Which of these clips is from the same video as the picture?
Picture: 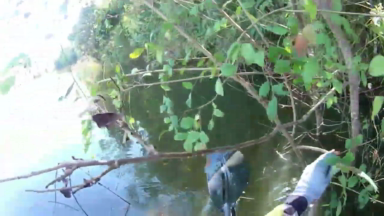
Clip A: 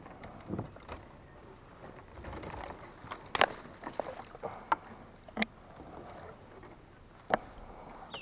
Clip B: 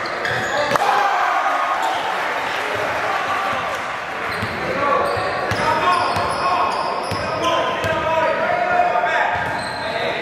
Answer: A